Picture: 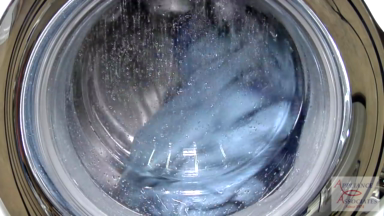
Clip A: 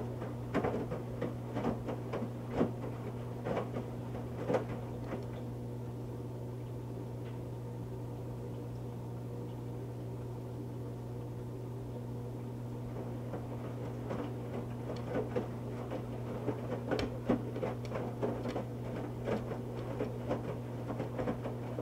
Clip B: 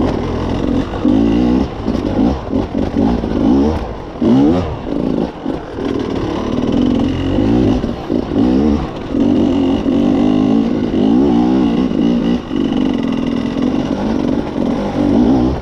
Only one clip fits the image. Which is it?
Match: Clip A